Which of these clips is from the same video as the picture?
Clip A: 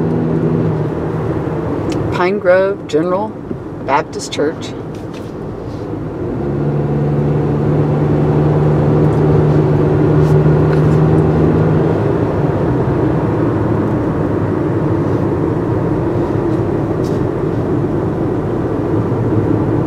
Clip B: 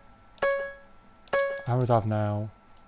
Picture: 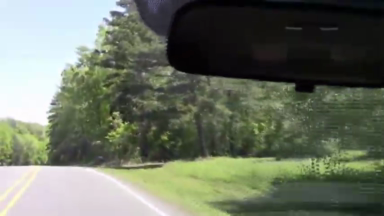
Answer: A